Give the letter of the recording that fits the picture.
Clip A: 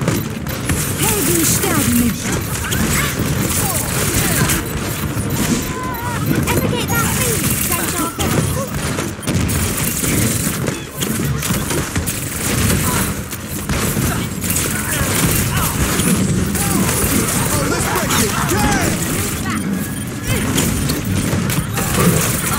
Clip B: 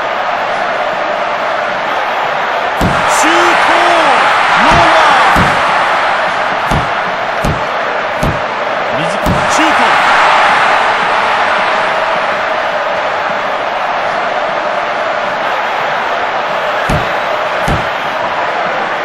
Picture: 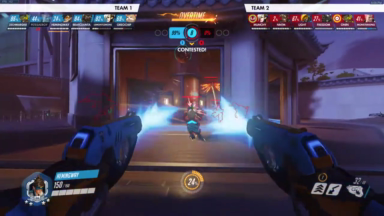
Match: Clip A